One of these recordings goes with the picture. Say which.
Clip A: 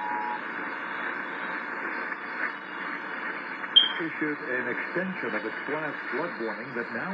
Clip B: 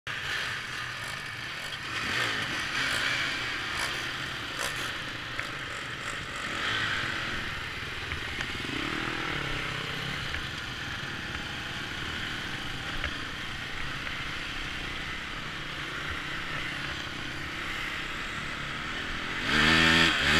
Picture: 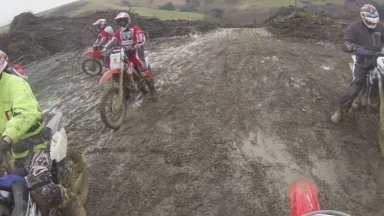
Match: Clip B